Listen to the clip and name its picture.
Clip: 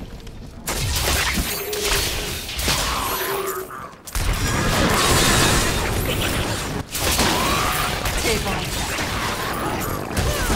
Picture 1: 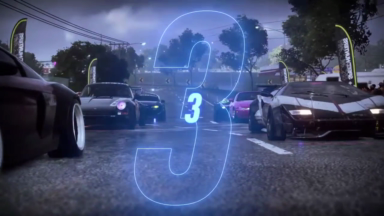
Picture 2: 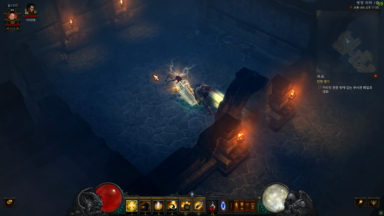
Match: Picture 2